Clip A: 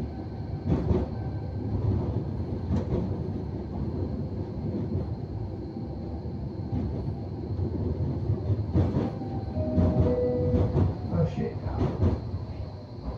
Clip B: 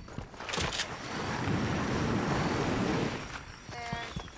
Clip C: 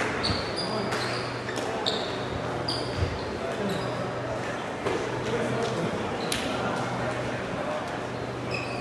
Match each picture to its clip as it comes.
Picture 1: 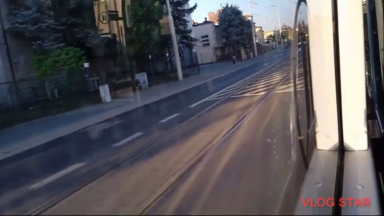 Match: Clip A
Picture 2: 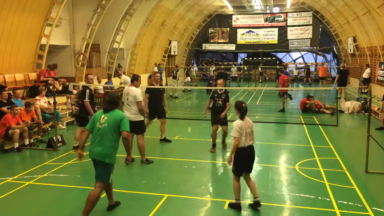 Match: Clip C